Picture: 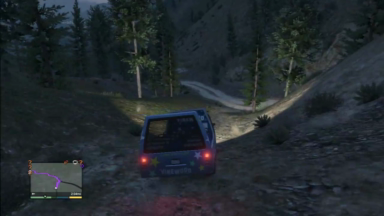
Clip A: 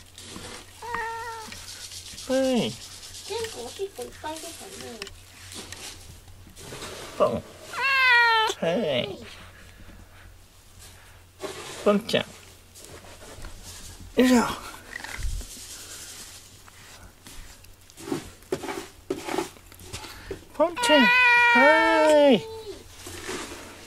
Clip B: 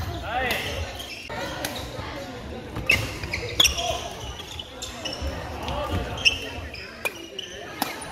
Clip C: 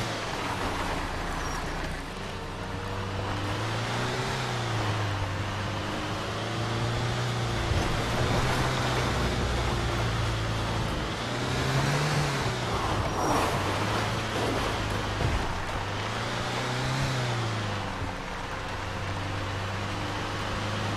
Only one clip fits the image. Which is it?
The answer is C